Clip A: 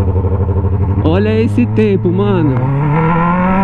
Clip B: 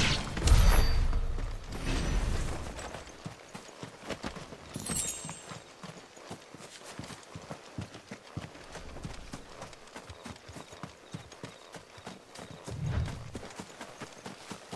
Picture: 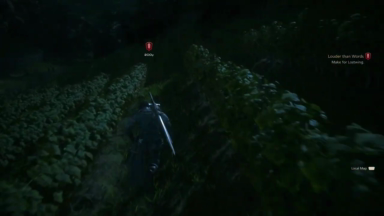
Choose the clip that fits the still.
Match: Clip B